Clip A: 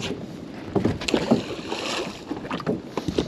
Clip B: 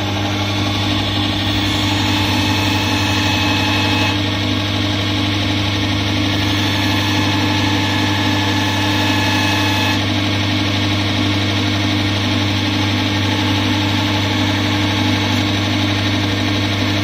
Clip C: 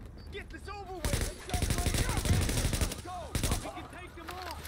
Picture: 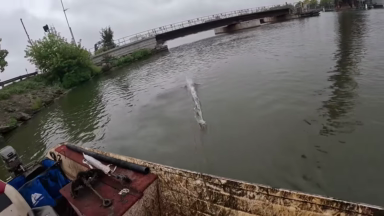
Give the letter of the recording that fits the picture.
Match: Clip A